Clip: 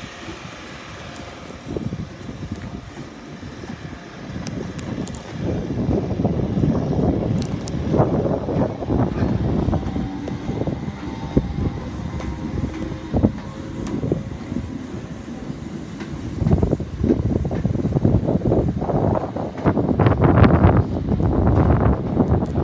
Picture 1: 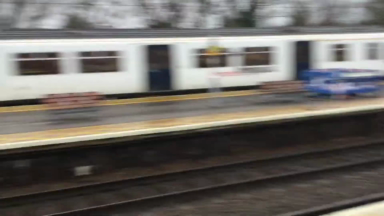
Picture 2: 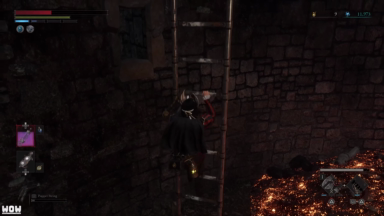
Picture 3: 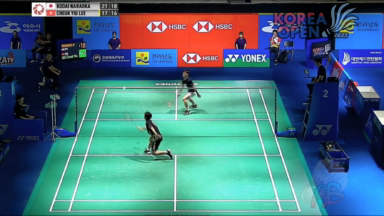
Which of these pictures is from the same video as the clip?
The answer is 1